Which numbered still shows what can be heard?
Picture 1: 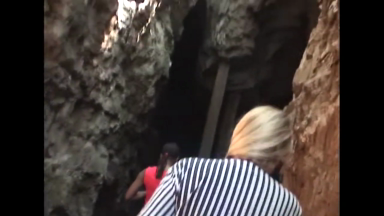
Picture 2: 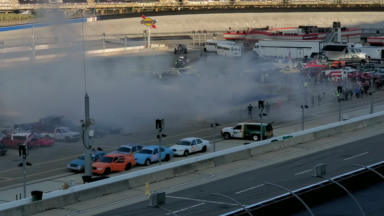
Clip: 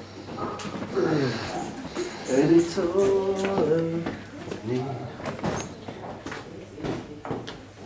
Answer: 1